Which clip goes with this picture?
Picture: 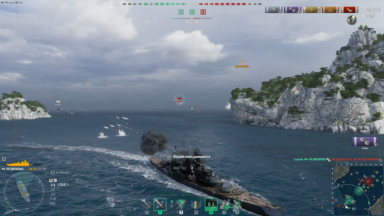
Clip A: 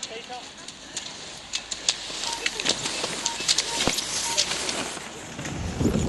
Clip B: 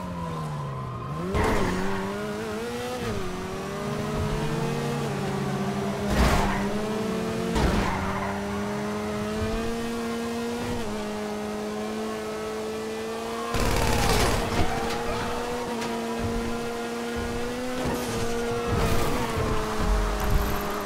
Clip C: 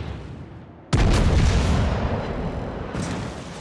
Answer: C